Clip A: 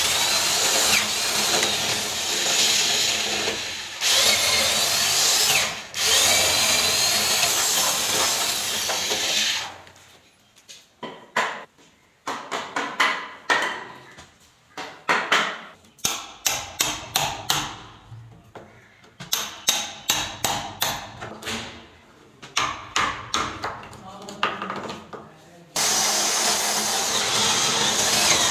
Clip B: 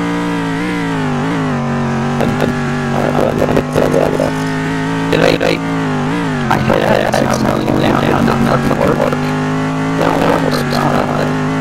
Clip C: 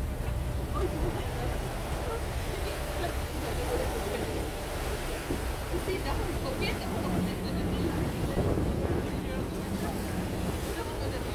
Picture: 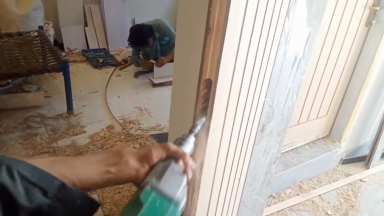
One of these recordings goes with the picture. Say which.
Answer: A